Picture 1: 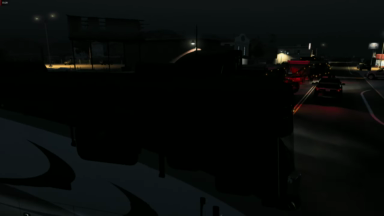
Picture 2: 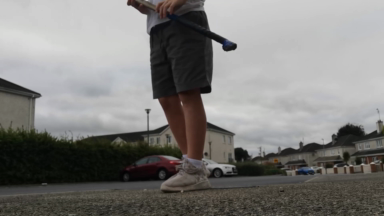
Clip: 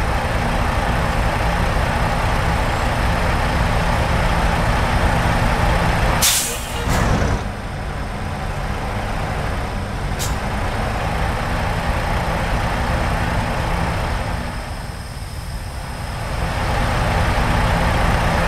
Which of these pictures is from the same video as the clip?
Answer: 1